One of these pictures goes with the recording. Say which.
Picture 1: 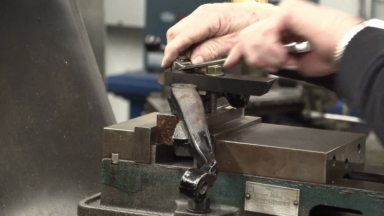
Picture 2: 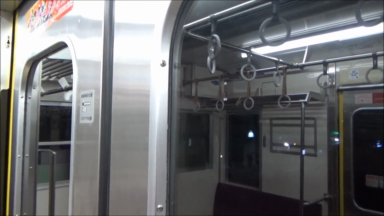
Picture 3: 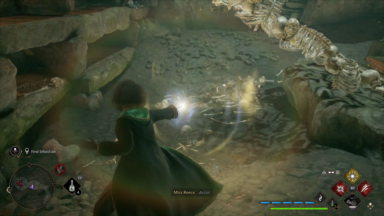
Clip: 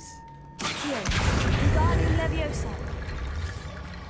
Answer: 3